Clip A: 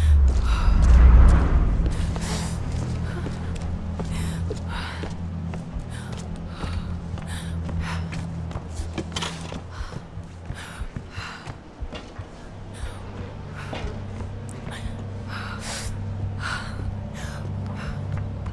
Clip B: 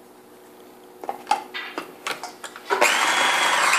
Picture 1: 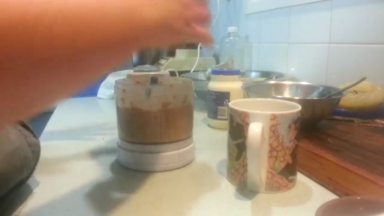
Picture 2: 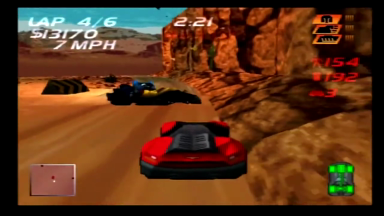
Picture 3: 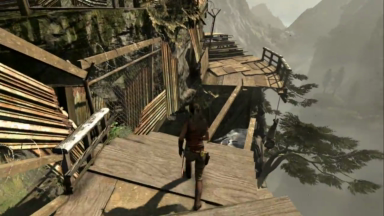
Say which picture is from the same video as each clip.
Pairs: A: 3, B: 1